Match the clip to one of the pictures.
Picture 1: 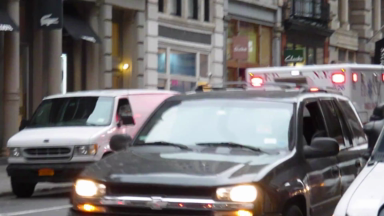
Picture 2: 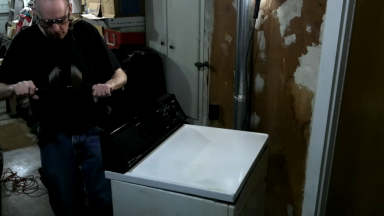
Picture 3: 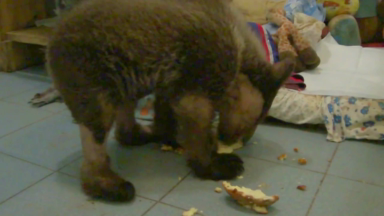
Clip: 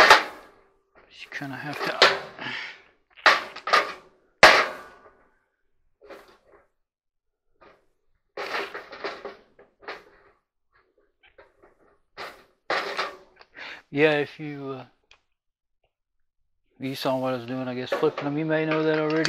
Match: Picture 2